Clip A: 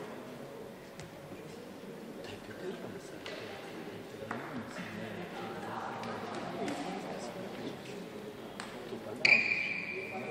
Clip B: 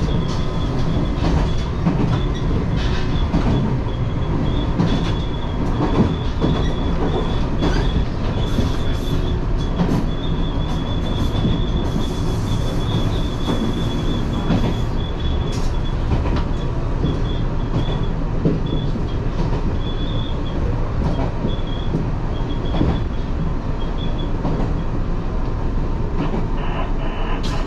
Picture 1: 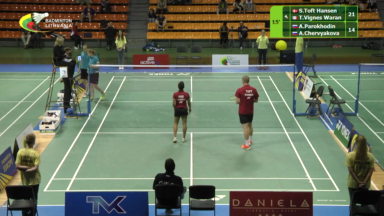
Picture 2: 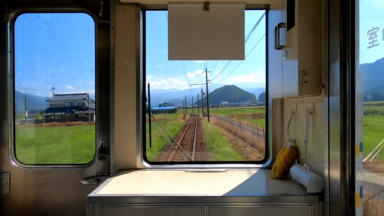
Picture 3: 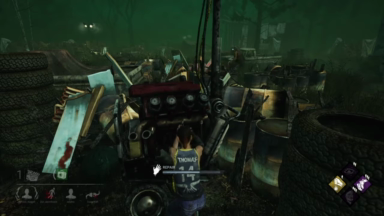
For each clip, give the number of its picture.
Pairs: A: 1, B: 2